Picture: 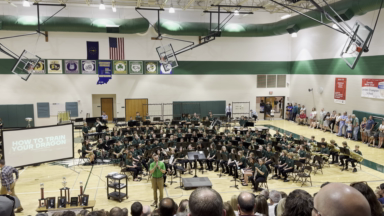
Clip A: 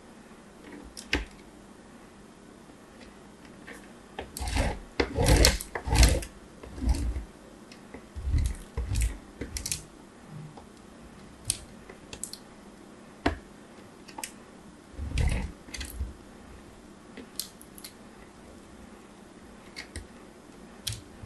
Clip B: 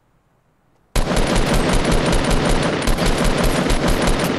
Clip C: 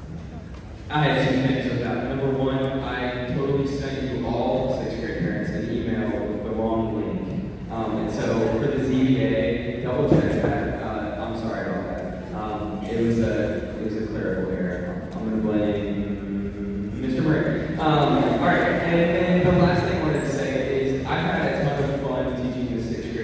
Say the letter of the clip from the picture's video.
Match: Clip C